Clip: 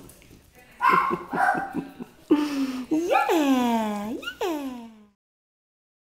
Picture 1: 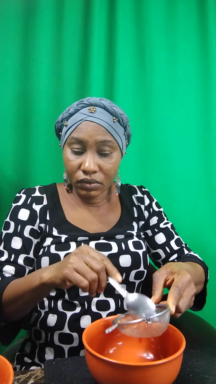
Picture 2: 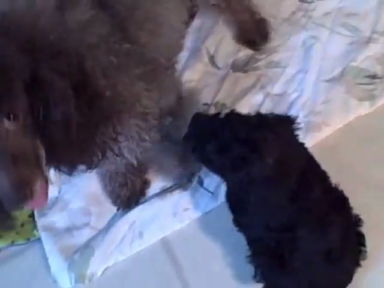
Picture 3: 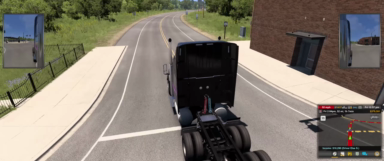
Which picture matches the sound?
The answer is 2